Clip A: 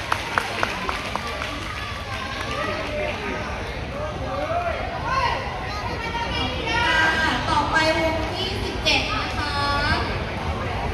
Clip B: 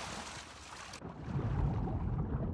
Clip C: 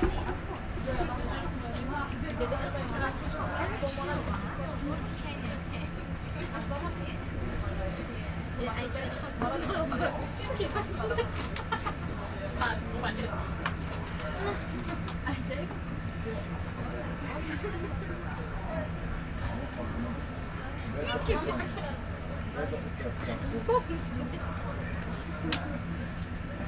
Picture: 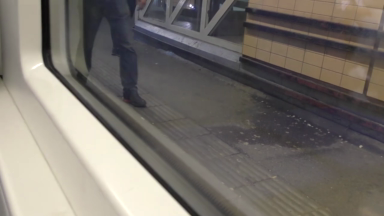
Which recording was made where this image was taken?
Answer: C